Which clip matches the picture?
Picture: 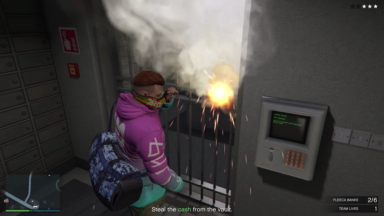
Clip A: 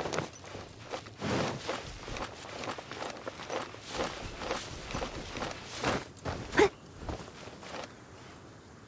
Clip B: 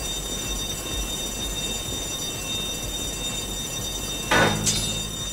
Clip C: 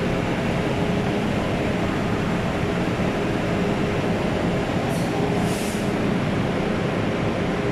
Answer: B